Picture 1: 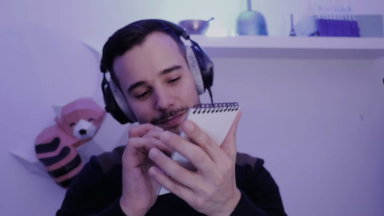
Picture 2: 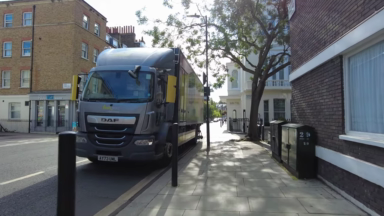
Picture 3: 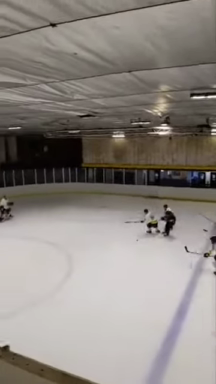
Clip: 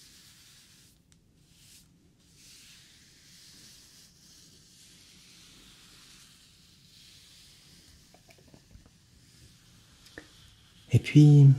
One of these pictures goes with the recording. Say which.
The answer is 1